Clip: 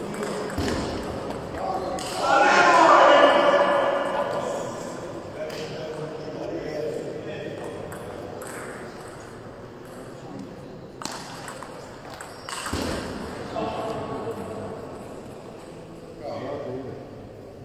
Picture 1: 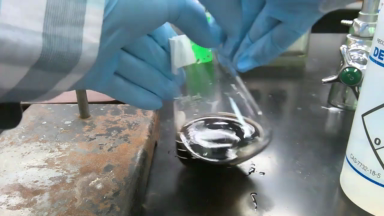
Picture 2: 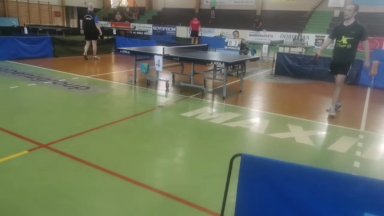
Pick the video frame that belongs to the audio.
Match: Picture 2